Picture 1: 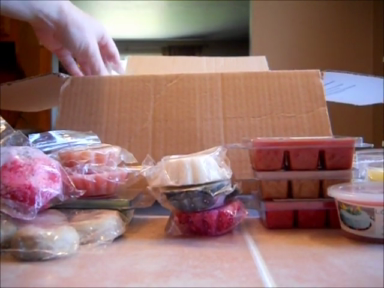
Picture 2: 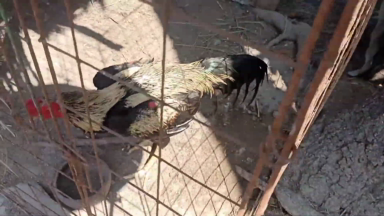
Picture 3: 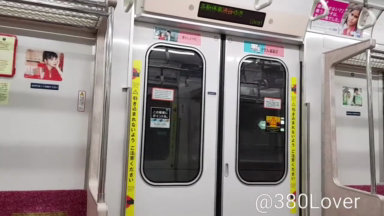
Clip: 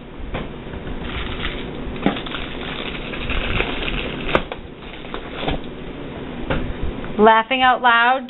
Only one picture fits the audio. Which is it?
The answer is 1